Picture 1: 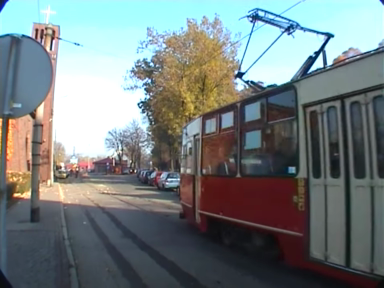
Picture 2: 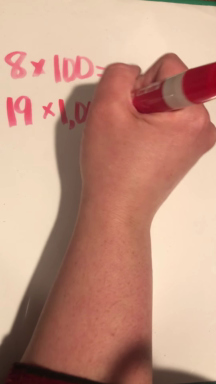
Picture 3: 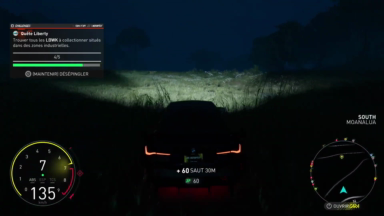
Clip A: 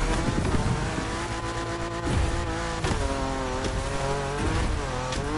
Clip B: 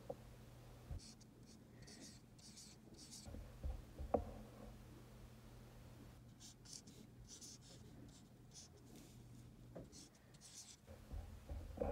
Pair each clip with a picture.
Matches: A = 3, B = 2